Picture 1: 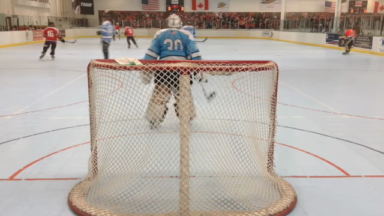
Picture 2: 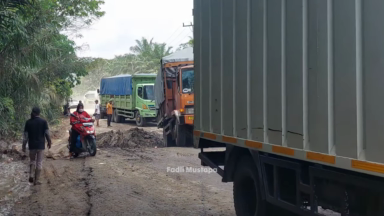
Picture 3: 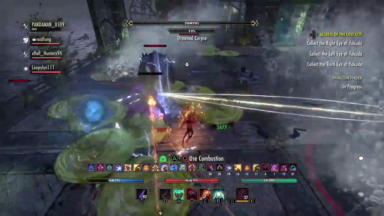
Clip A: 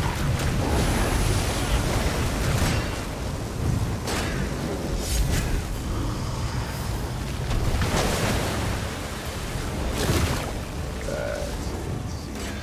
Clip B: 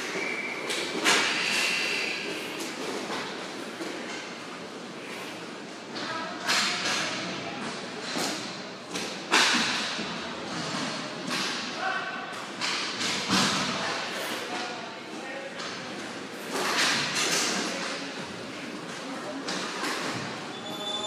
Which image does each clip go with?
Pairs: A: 3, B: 1